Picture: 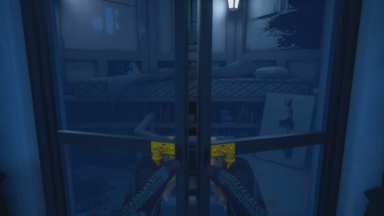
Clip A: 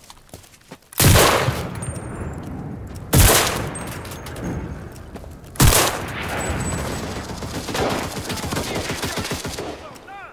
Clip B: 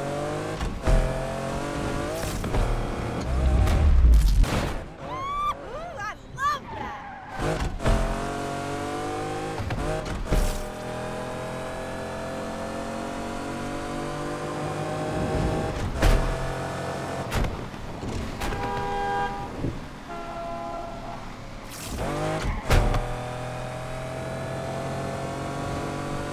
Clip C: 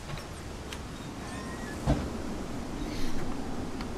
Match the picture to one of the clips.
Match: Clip C